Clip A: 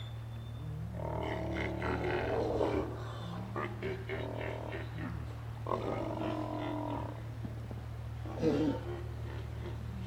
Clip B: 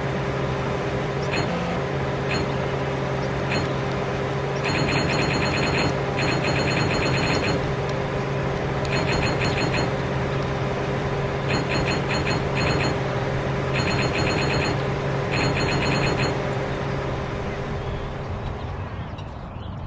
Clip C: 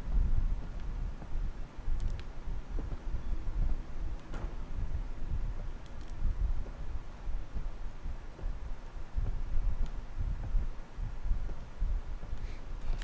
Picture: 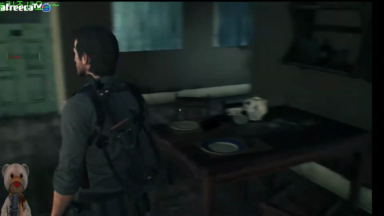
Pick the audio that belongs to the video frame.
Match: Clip C